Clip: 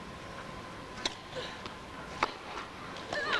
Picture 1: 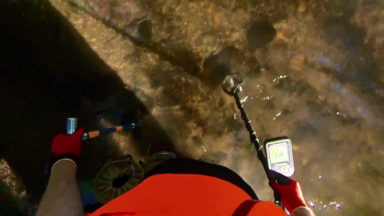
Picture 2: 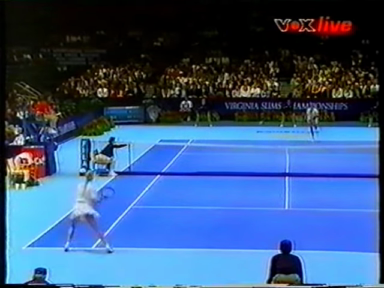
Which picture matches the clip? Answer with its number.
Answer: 2